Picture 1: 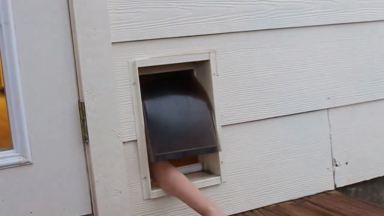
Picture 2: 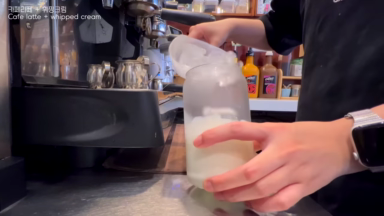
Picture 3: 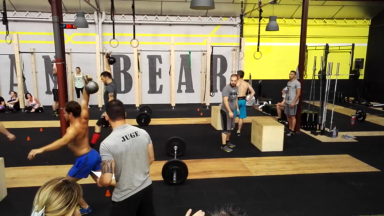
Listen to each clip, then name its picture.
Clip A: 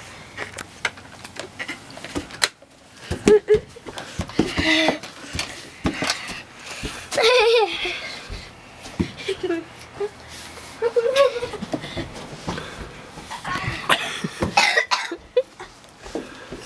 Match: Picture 1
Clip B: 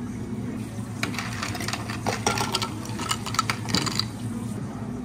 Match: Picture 2